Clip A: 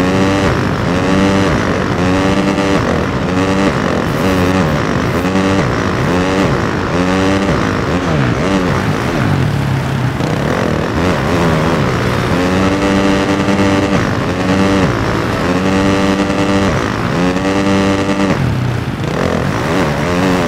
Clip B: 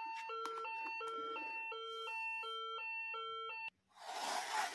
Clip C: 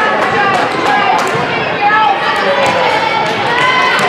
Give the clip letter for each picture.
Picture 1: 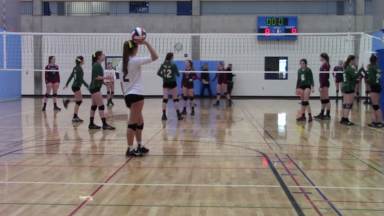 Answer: C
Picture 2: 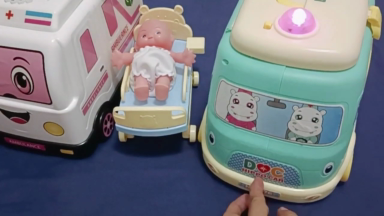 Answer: B